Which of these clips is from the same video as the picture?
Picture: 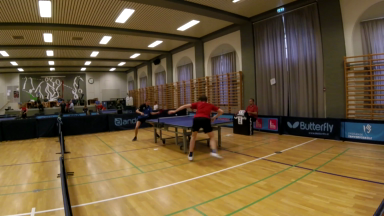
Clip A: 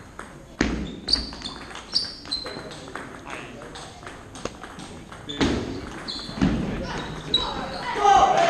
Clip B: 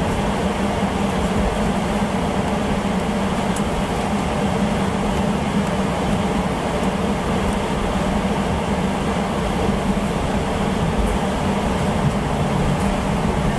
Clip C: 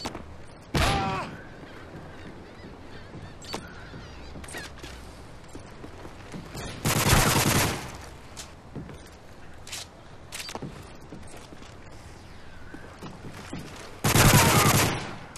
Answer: A